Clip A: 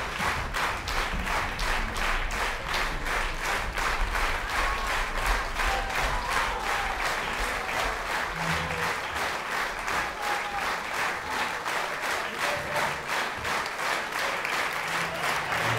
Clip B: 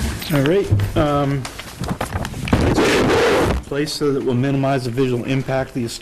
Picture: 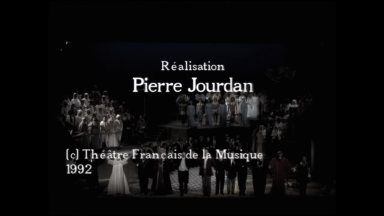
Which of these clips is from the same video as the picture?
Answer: A